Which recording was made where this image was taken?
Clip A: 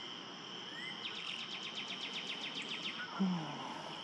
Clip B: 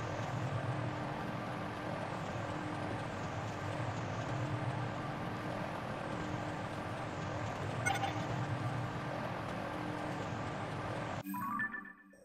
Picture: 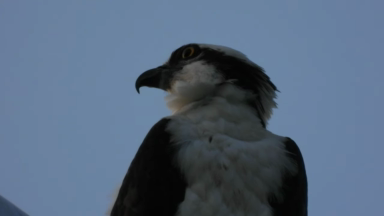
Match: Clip A